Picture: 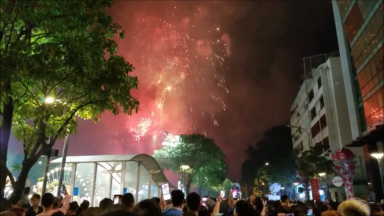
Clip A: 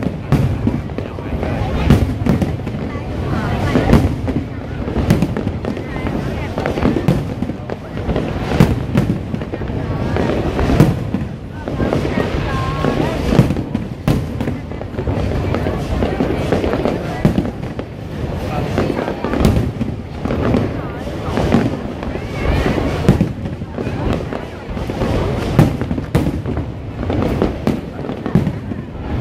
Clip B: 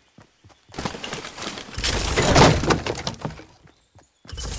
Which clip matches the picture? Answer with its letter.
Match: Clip A